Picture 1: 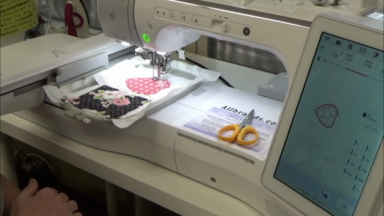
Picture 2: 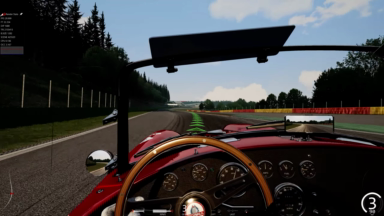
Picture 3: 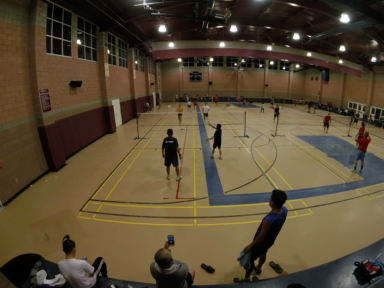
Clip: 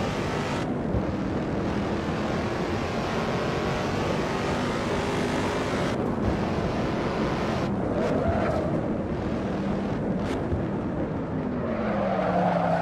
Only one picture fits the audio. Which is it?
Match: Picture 2